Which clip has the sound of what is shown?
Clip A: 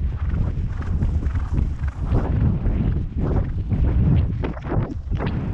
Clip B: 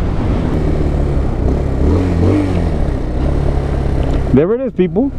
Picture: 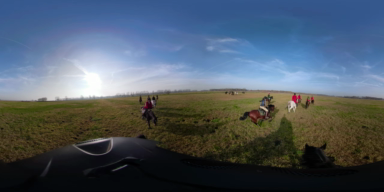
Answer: A